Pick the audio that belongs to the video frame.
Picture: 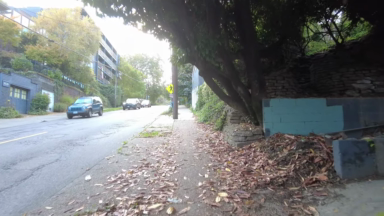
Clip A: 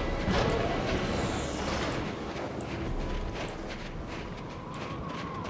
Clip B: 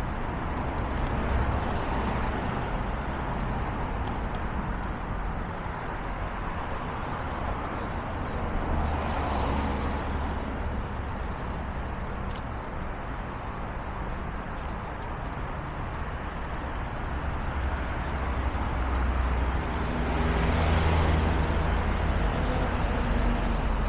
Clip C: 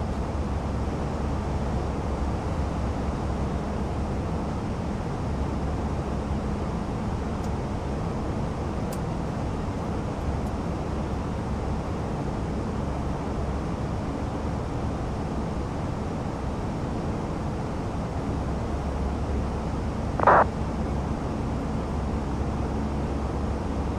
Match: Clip B